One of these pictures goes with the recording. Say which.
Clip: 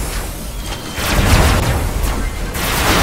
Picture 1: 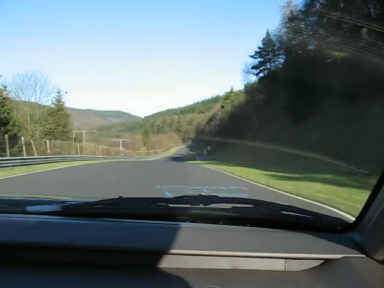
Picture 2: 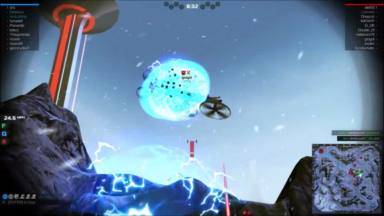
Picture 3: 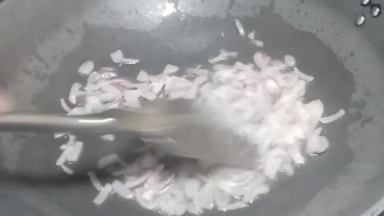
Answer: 2